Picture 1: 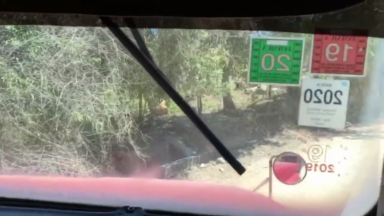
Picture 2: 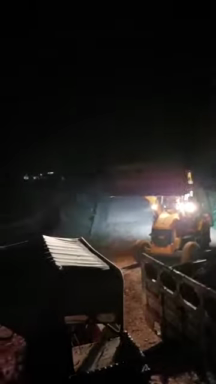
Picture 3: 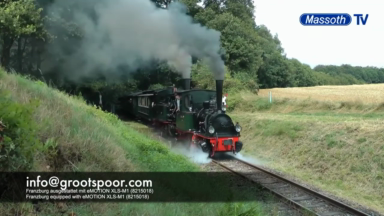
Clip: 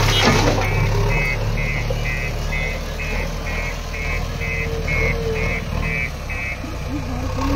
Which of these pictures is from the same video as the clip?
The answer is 2